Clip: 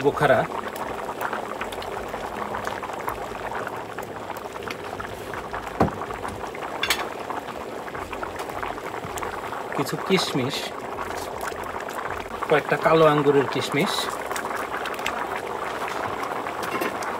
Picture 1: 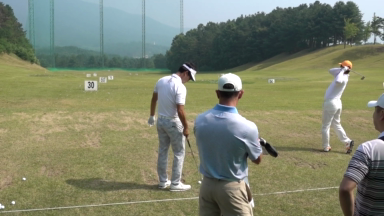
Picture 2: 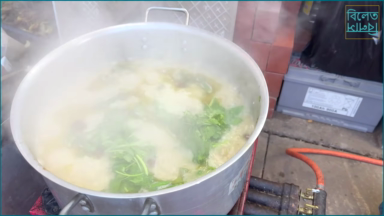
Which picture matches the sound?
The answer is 2